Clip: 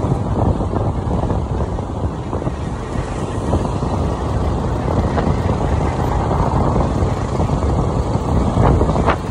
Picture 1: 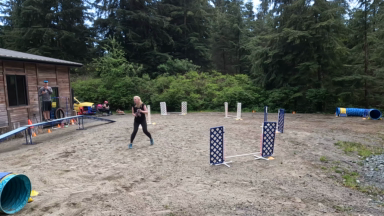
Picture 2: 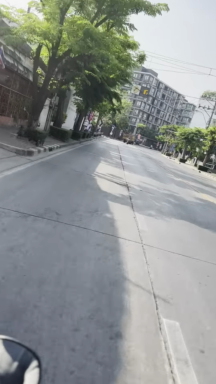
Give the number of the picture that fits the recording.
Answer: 2